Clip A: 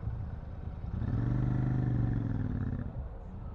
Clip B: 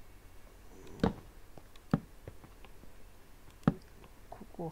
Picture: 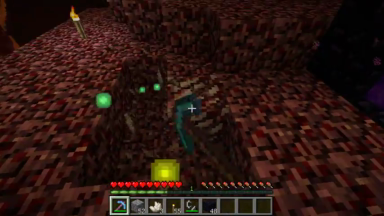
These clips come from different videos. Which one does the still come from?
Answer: B